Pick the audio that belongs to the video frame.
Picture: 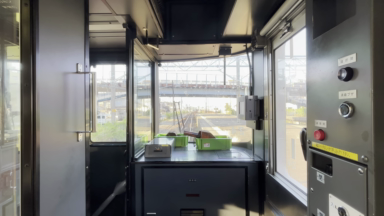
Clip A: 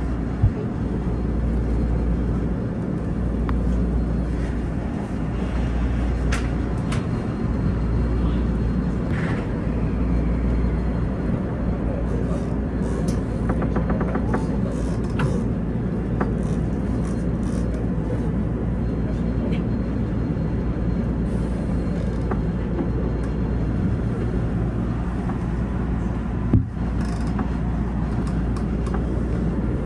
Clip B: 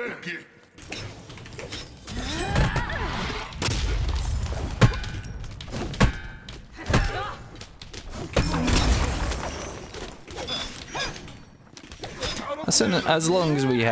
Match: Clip A